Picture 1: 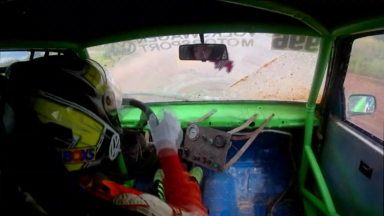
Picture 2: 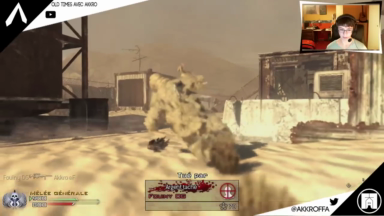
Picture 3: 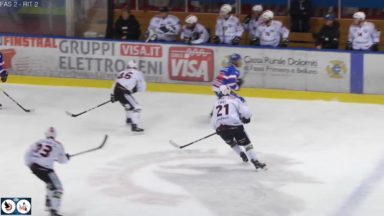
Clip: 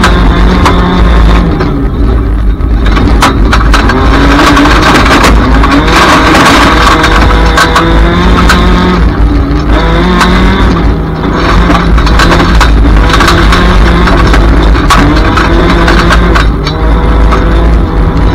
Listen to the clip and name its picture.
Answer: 1